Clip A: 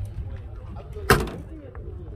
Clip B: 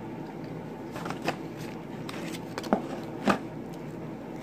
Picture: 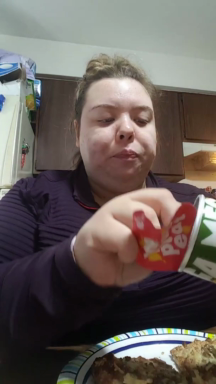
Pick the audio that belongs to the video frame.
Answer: B